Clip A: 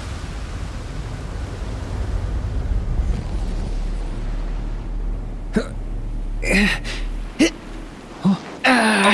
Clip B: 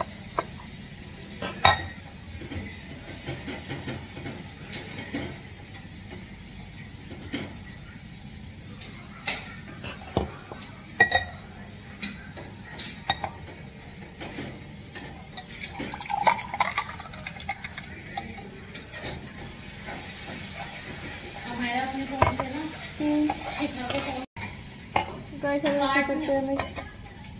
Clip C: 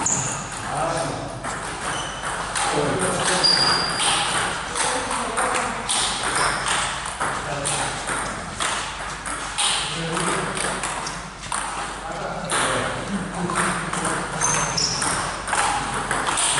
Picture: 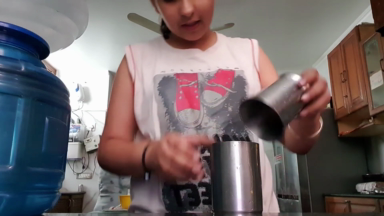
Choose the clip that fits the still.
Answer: B